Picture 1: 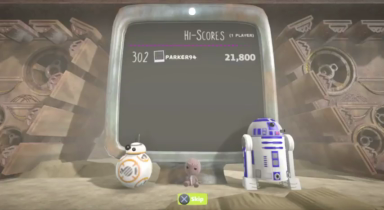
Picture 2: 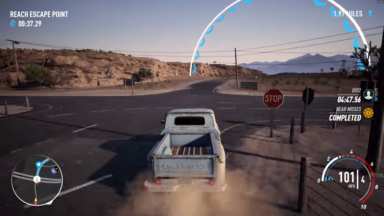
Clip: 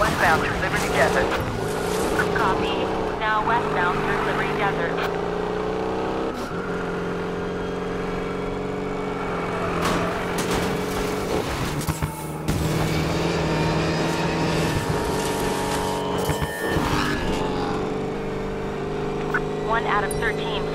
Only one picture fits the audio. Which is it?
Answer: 2